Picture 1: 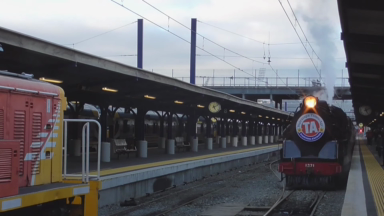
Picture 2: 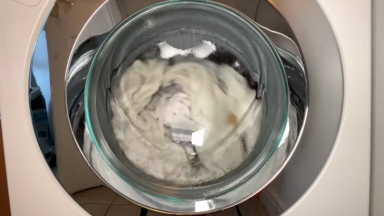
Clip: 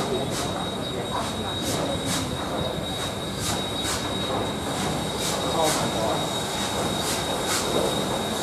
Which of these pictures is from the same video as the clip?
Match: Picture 1